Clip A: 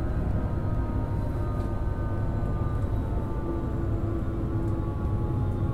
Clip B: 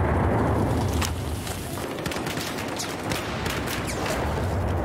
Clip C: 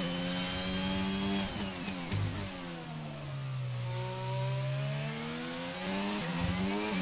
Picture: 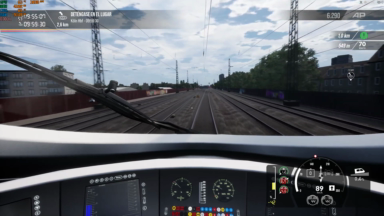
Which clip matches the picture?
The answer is A